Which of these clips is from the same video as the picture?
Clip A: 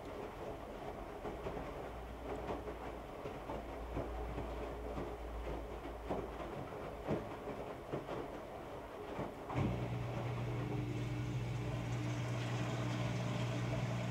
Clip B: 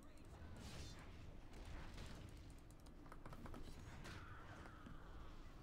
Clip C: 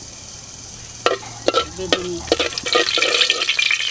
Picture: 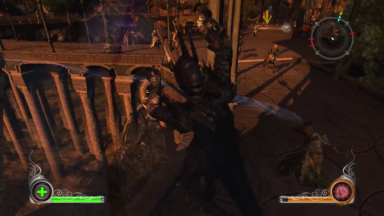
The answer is B